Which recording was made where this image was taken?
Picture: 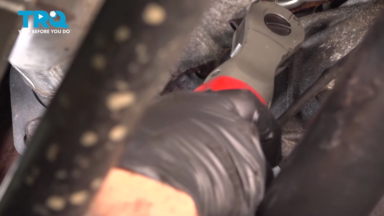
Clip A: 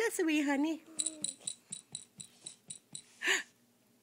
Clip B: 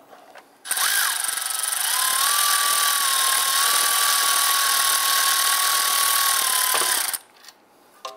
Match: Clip B